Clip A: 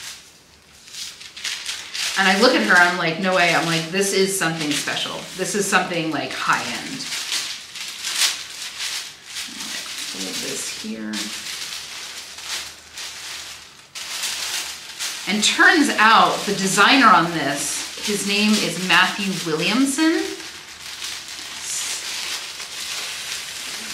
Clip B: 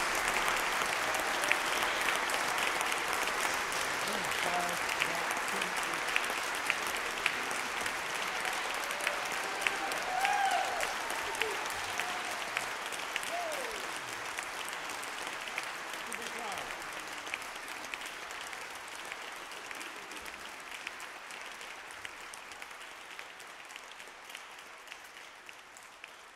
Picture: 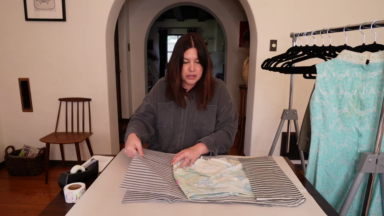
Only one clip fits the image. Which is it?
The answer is A